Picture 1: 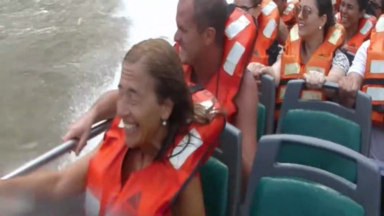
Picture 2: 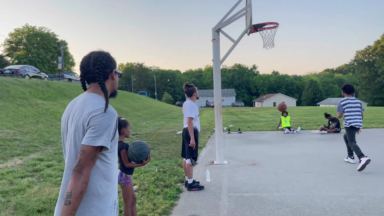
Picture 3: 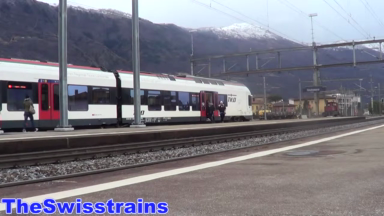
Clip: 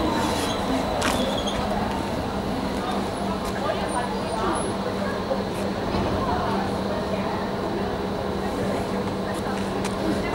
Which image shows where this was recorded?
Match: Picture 3